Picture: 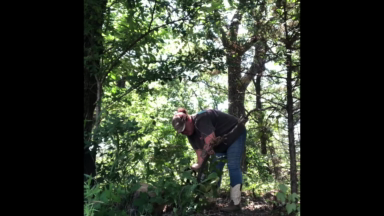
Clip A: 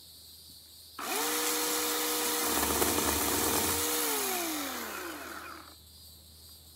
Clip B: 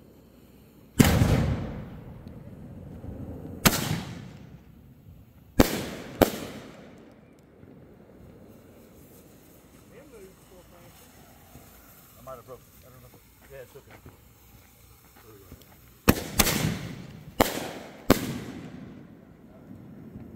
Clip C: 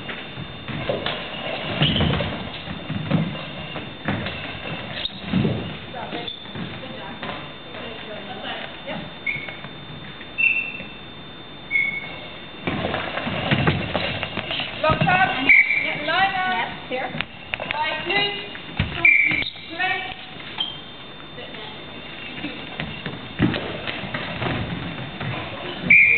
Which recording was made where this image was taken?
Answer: A